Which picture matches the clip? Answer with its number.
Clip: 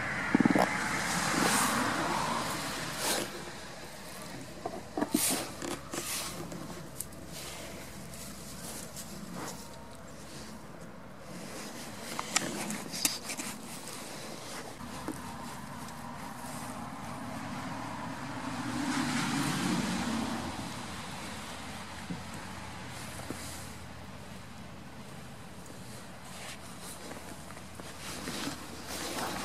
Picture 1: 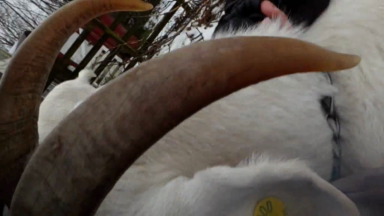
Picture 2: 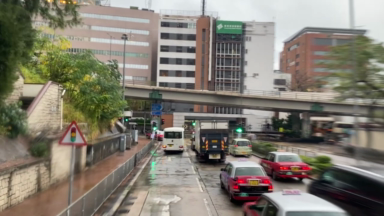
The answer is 1